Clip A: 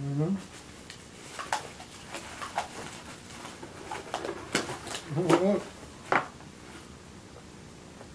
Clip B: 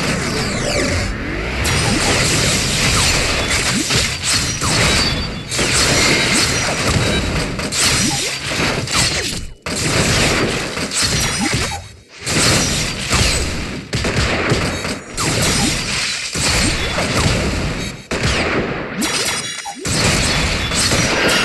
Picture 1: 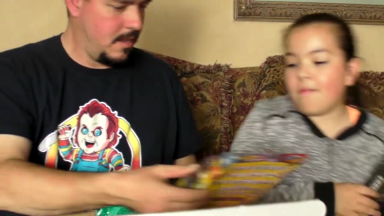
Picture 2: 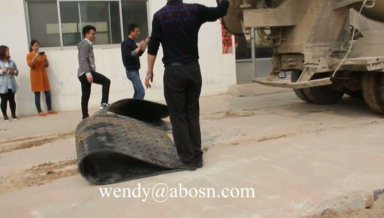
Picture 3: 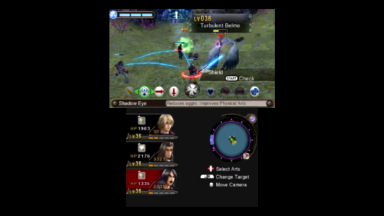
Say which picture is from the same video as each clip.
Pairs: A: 1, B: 3